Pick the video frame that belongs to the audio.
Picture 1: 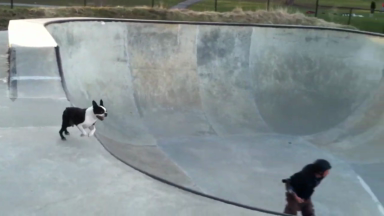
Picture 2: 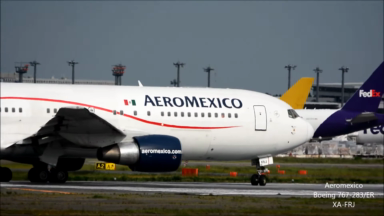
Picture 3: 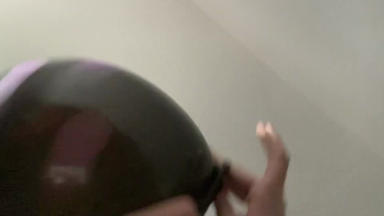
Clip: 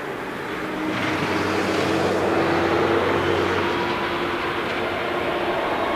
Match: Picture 2